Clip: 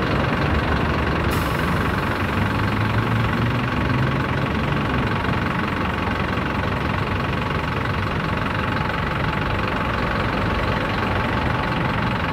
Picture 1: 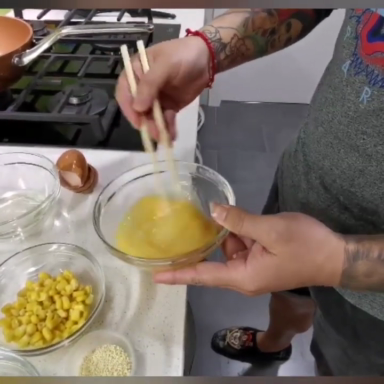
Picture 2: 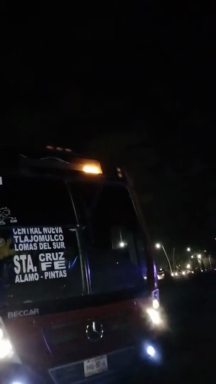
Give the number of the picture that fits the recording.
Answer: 2